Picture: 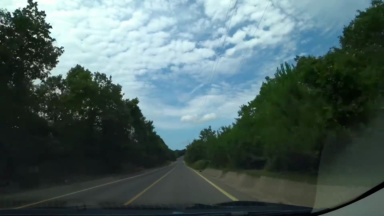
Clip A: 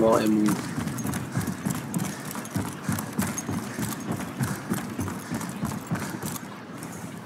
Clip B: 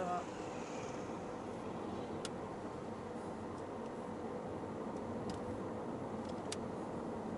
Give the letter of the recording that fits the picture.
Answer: B